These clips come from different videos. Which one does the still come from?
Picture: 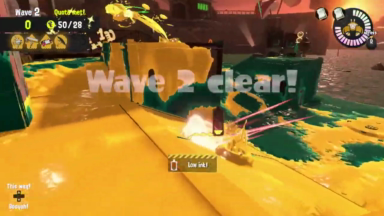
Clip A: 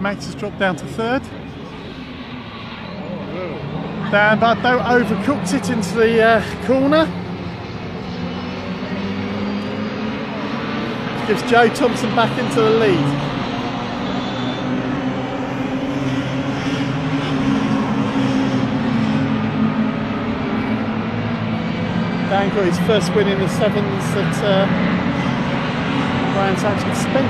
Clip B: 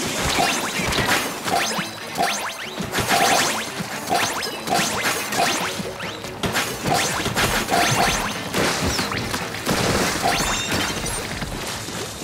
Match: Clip B